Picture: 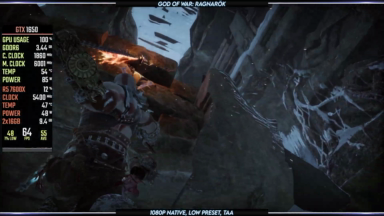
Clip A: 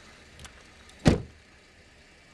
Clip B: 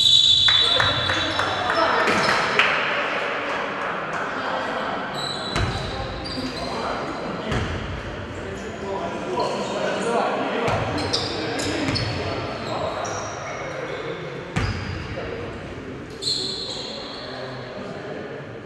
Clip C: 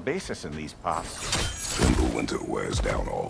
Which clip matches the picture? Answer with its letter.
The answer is C